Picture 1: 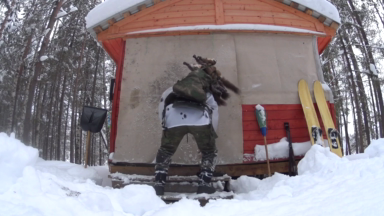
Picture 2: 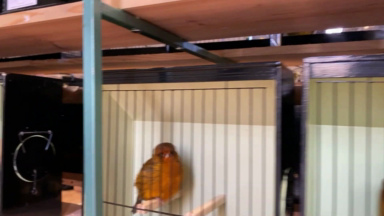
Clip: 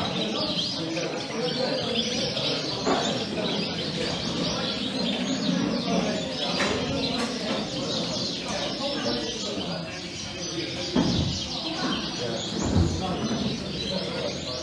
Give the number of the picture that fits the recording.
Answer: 2